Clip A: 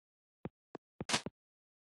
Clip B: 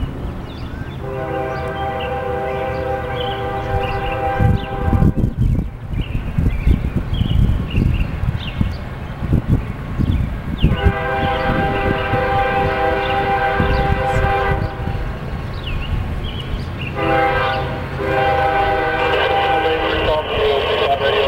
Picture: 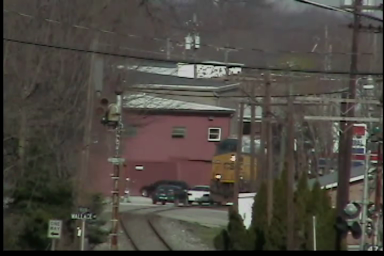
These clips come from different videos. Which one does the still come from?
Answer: B